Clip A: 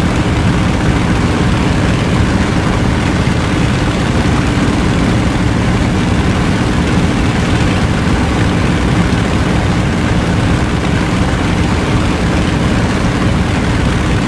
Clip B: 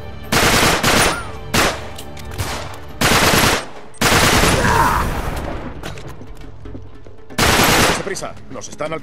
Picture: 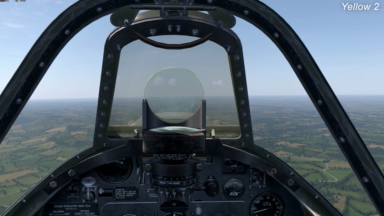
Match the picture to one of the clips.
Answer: A